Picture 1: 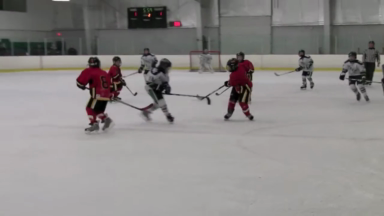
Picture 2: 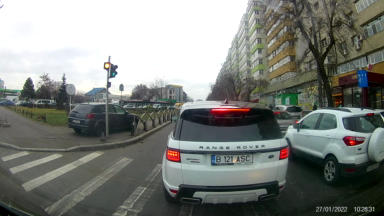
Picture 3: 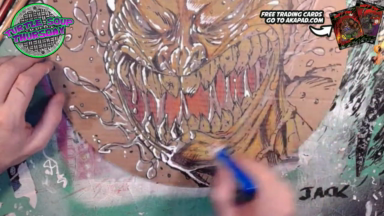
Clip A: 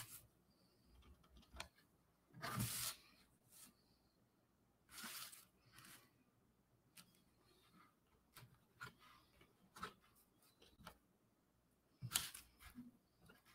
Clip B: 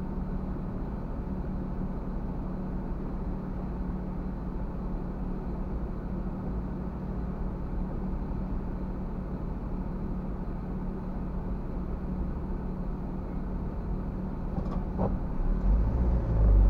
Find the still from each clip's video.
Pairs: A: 3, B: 2